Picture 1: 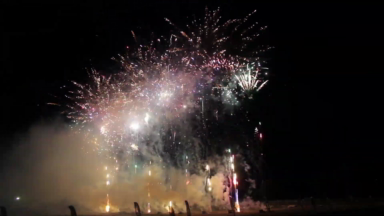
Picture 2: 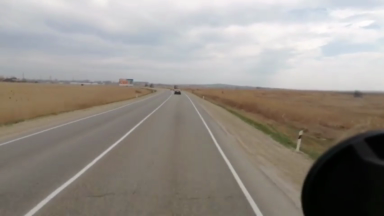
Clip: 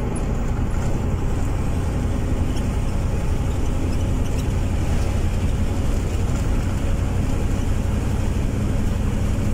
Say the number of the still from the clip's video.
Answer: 2